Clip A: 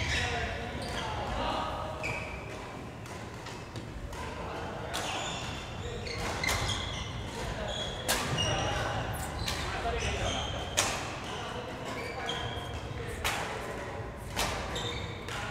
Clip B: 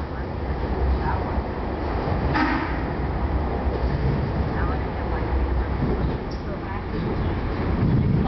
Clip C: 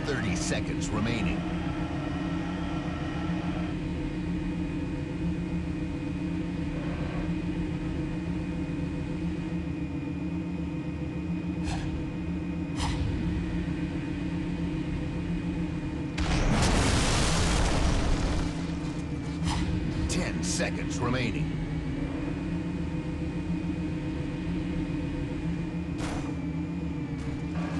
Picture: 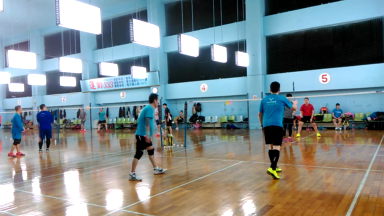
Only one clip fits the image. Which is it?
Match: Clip A